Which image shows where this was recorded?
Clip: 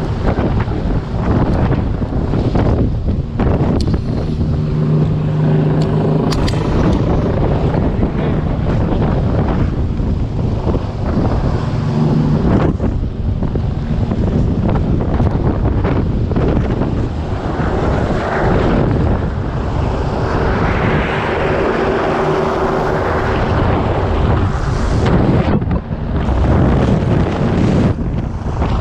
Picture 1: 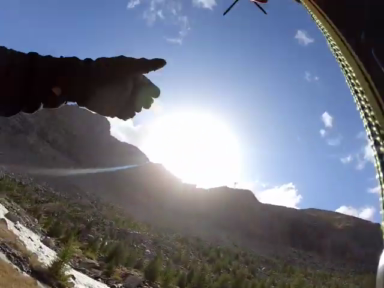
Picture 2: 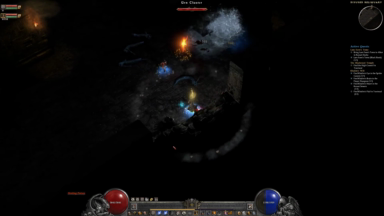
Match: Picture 1